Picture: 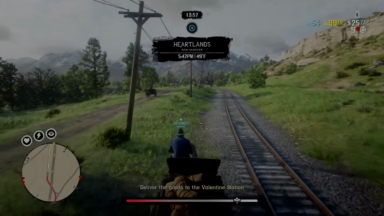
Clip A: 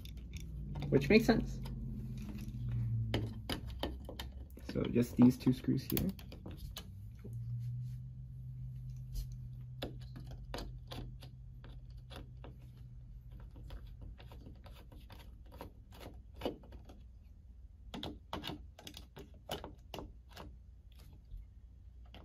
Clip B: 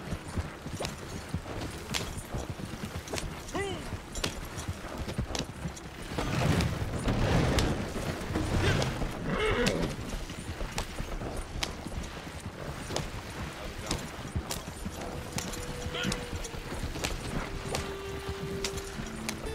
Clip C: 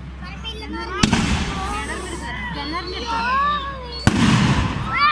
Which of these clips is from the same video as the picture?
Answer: B